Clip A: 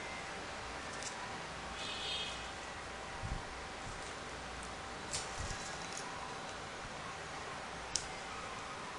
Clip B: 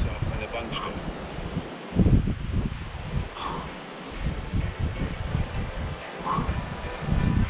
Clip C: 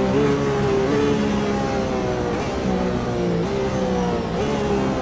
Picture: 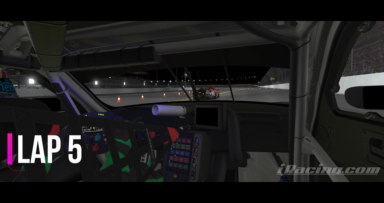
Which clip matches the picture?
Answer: C